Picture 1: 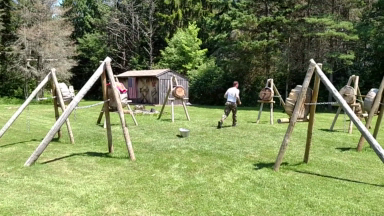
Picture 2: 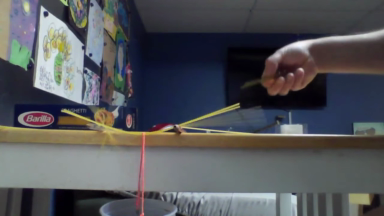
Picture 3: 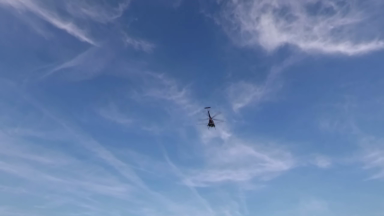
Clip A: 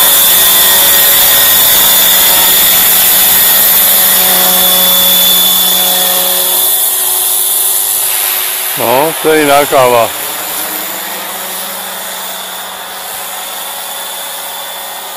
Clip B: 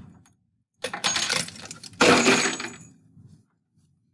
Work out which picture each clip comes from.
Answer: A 3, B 2